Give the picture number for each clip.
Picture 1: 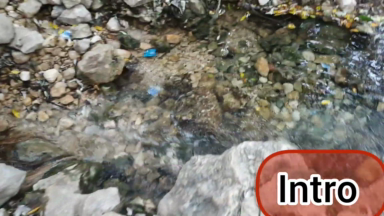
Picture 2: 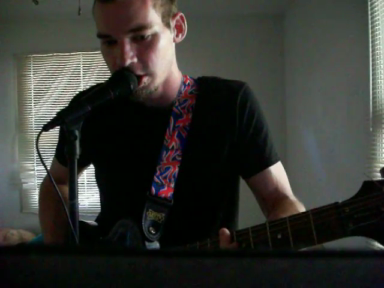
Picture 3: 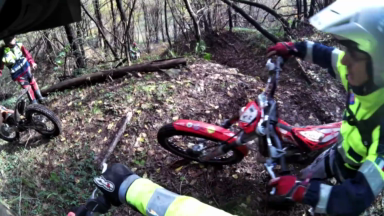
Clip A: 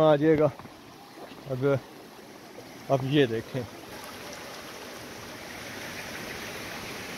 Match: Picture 1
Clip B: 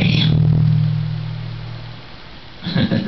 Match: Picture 2